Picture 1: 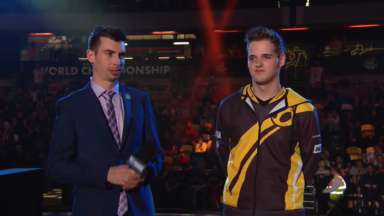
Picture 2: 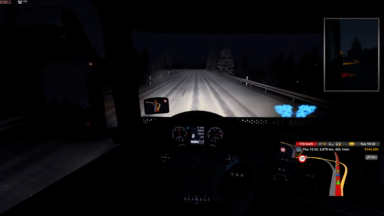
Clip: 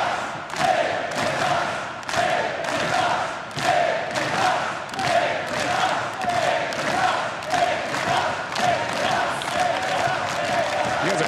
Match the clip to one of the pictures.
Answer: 1